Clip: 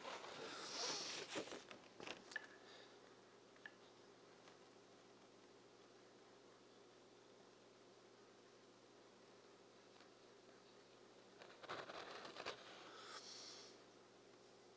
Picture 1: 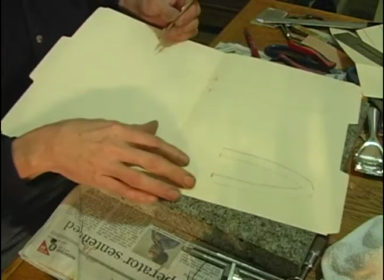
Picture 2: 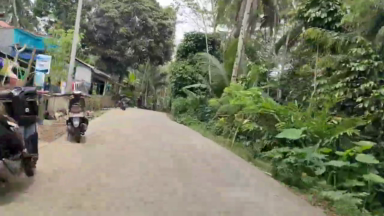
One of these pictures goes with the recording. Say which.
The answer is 1